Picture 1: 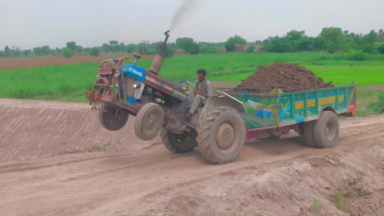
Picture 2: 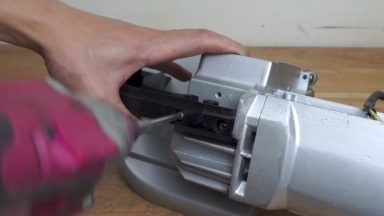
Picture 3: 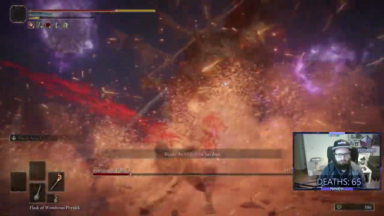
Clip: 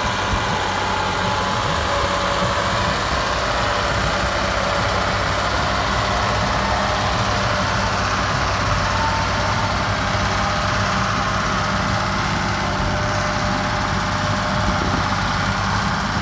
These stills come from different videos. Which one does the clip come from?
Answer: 1